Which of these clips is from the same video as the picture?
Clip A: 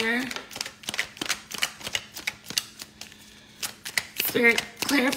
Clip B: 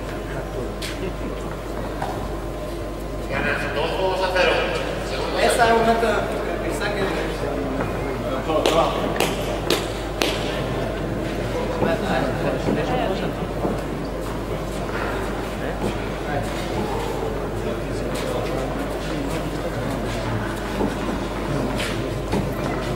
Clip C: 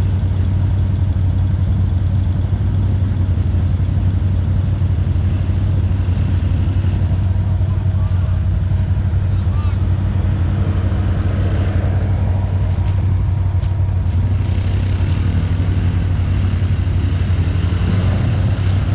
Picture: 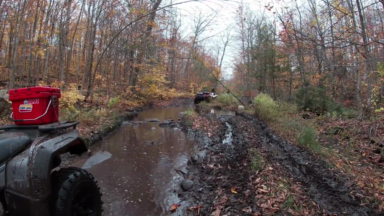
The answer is C